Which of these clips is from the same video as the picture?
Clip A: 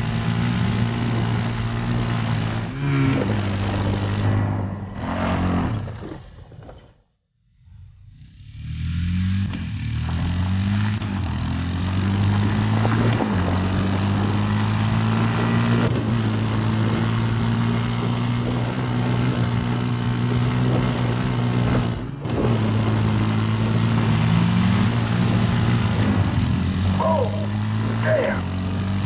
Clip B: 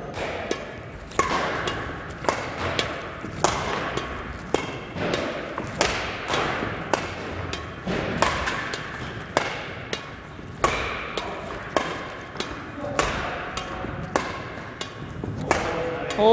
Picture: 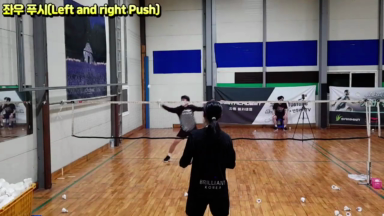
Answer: B